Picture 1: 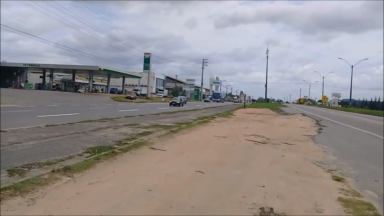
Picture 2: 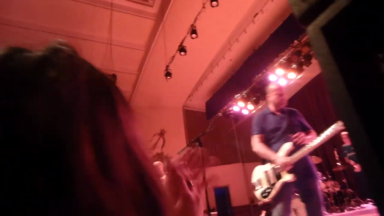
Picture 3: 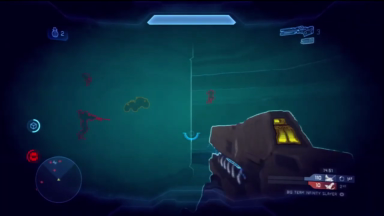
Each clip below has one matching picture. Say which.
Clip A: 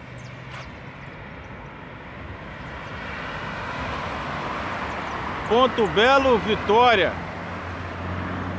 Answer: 1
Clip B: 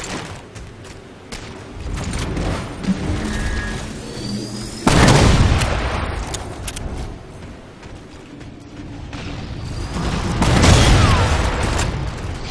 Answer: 3